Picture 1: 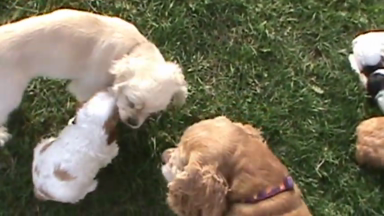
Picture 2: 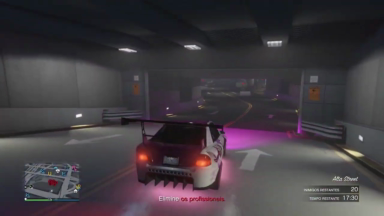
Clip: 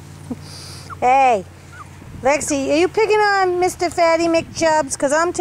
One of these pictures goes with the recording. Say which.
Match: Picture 1